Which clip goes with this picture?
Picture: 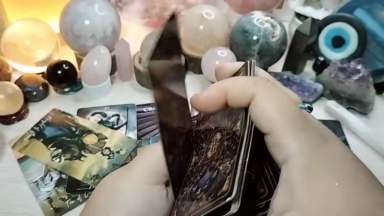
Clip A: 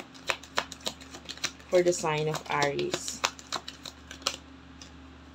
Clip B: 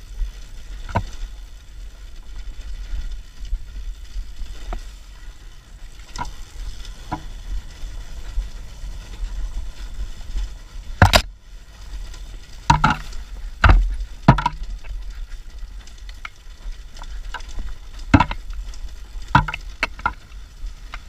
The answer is A